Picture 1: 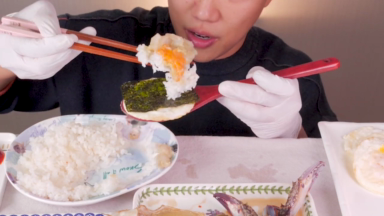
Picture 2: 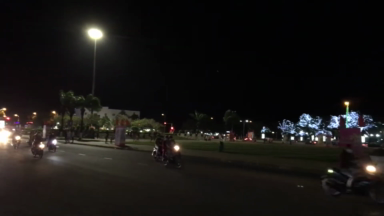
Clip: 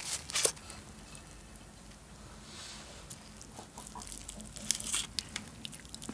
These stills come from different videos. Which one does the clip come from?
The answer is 1